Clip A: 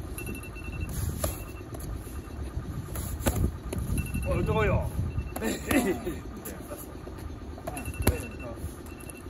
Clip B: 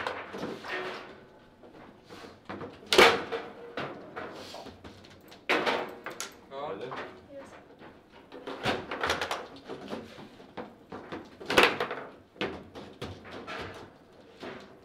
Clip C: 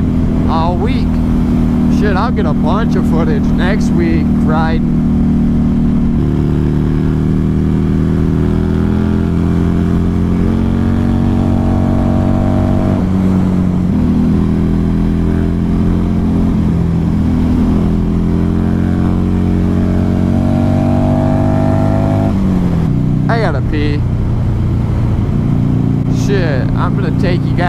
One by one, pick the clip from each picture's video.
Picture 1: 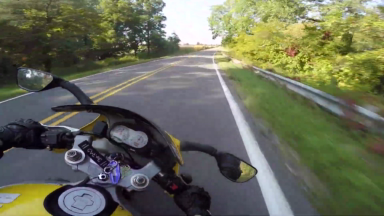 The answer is C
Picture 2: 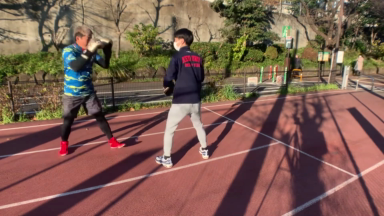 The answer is A